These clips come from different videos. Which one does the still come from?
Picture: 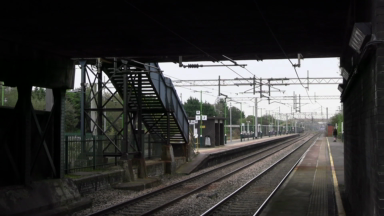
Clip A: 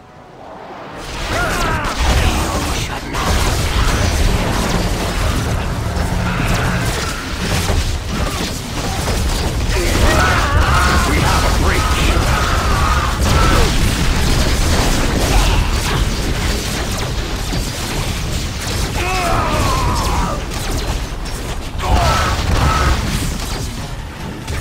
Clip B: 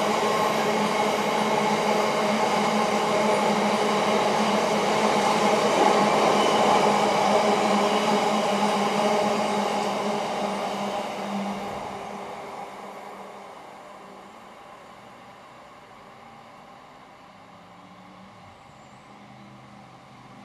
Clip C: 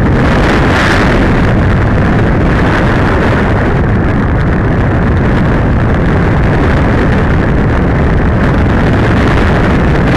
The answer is B